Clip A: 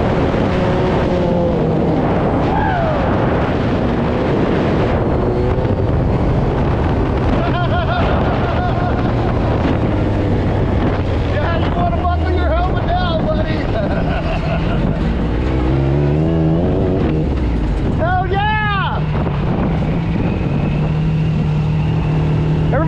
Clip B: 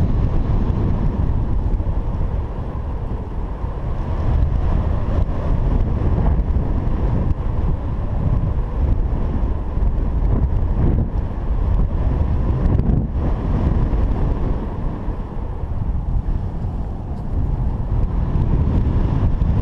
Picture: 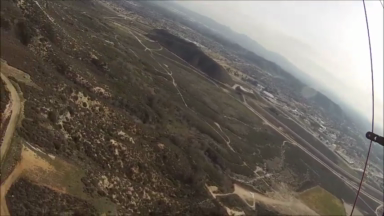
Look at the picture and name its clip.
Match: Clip B